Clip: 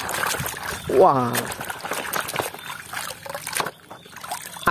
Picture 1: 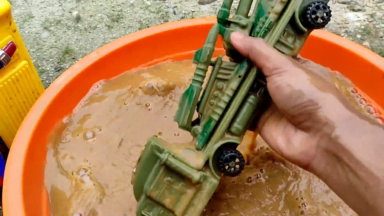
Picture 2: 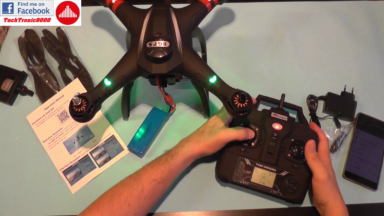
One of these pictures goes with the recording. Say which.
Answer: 1